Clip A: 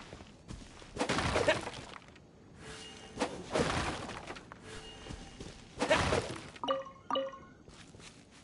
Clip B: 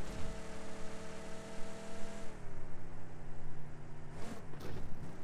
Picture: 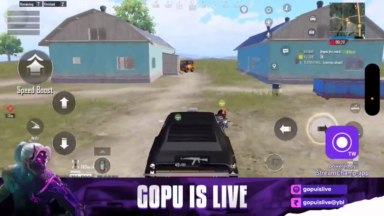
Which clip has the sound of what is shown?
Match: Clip B